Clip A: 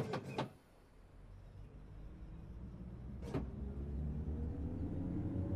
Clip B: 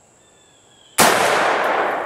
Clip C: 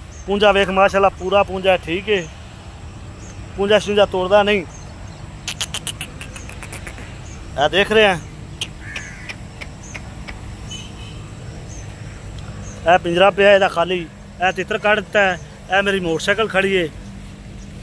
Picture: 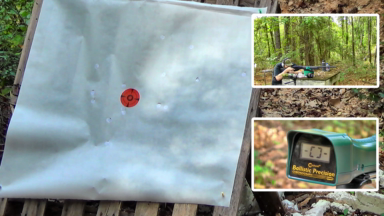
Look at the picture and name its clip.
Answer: B